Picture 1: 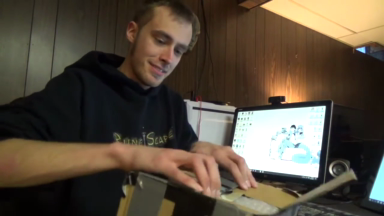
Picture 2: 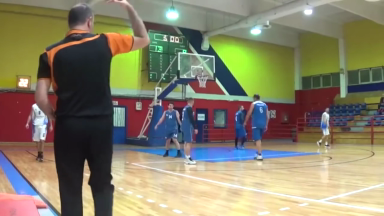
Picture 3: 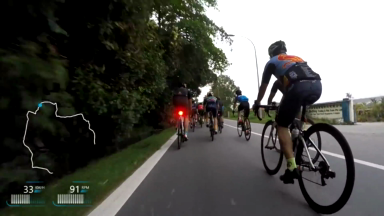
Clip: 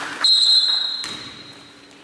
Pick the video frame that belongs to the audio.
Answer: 2